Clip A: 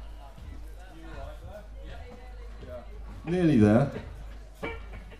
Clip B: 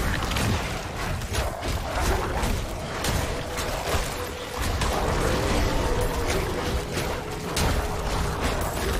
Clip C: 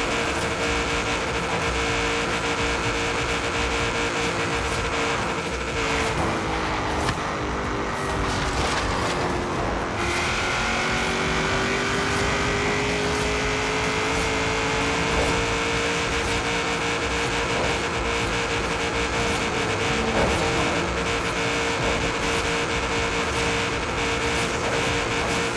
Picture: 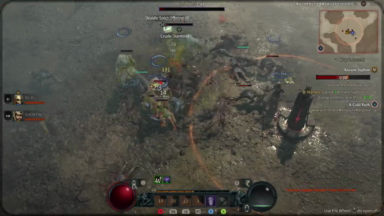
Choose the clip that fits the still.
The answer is B